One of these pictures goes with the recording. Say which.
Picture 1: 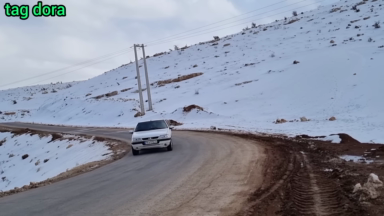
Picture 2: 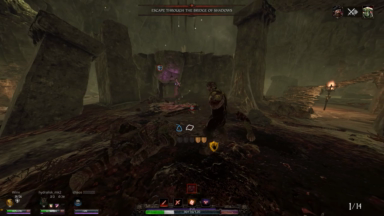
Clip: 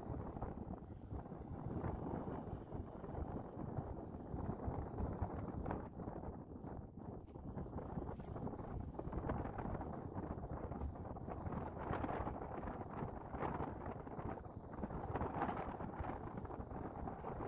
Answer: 1